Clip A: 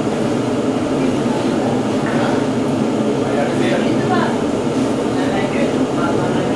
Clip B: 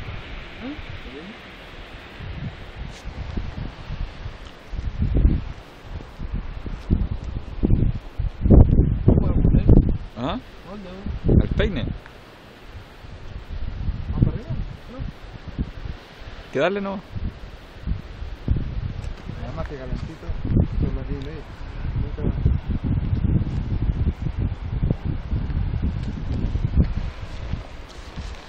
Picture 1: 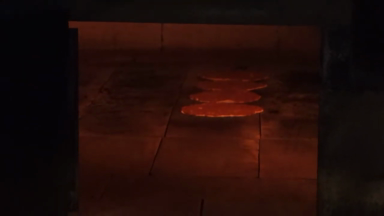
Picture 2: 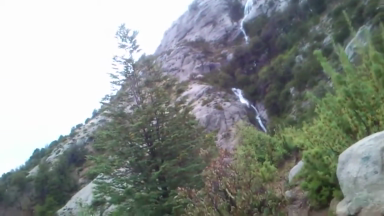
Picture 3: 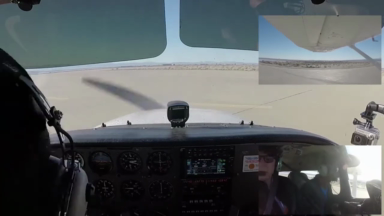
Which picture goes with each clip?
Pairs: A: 1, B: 2